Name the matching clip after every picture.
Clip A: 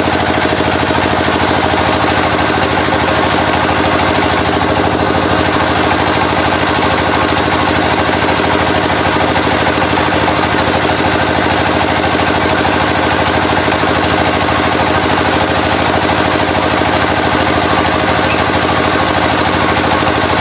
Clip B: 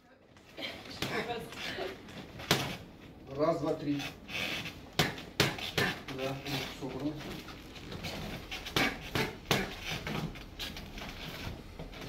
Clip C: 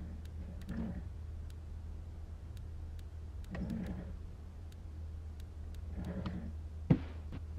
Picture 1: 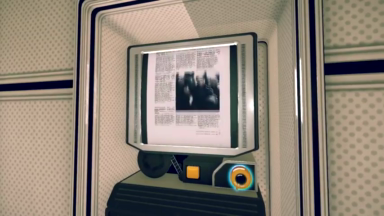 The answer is C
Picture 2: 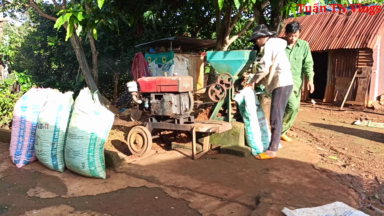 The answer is A